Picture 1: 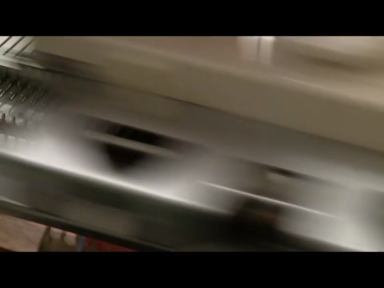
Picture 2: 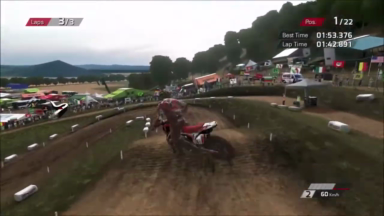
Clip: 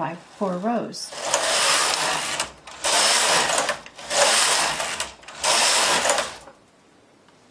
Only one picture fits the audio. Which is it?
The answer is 1